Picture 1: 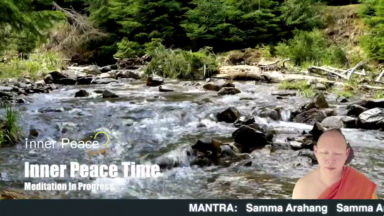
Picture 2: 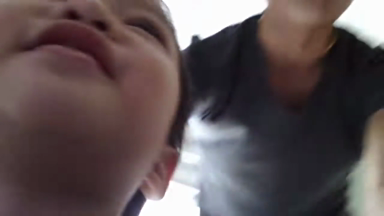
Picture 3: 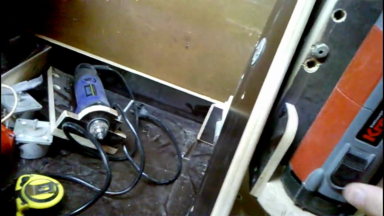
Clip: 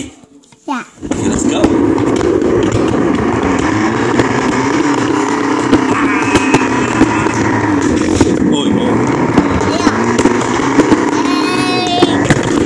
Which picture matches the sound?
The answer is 2